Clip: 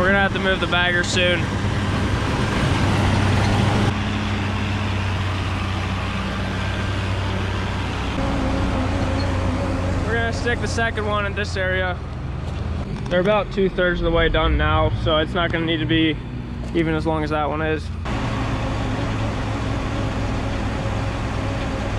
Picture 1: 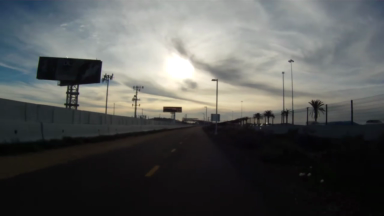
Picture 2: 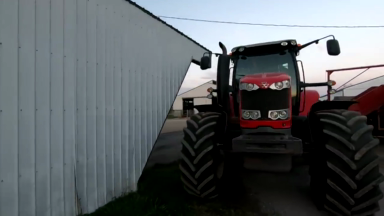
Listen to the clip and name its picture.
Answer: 2